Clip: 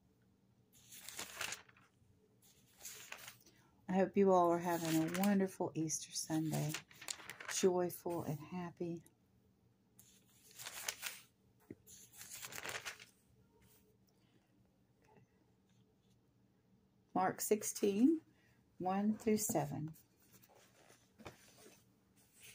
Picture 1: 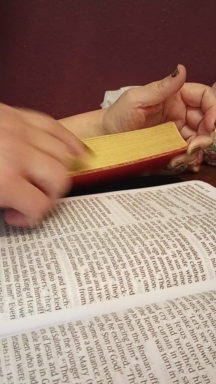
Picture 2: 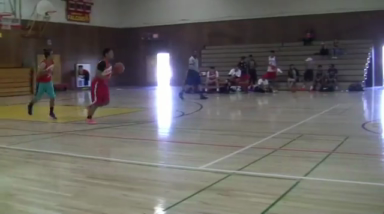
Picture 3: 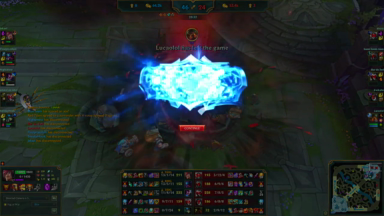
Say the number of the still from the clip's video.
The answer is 1